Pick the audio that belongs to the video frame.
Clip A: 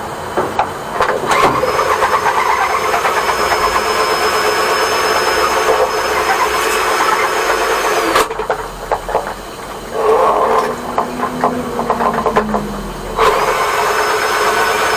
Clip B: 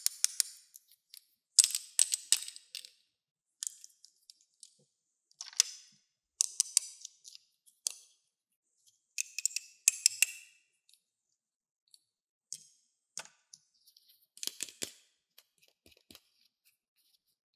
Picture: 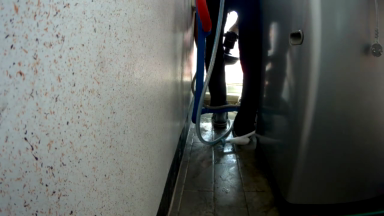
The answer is A